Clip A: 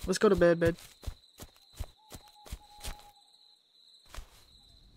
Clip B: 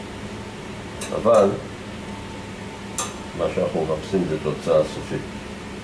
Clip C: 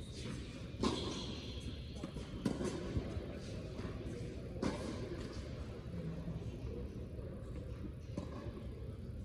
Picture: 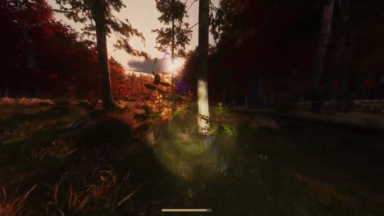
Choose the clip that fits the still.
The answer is A